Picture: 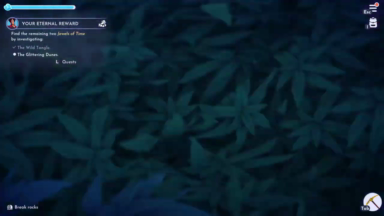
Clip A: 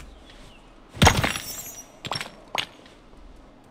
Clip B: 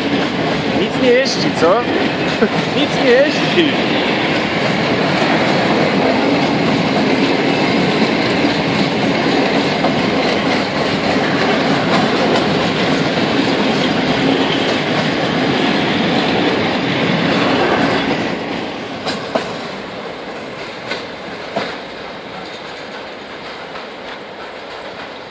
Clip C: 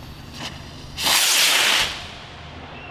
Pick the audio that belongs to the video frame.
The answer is A